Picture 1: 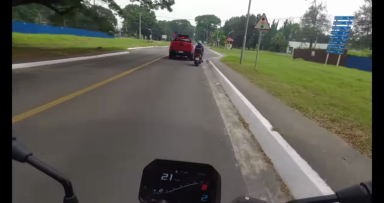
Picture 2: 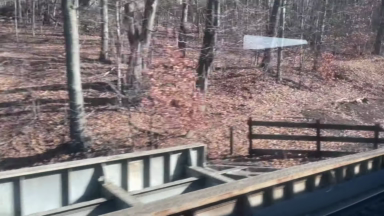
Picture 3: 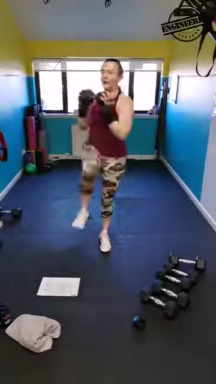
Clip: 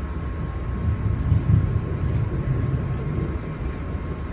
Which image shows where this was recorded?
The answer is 2